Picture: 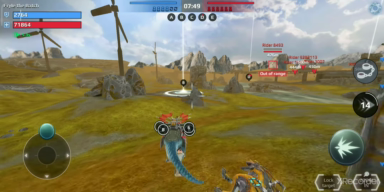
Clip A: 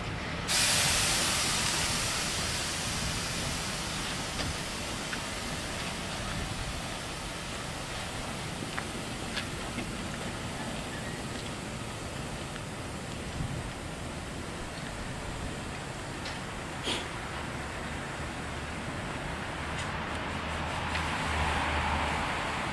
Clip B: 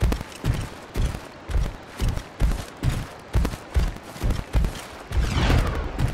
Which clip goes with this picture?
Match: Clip B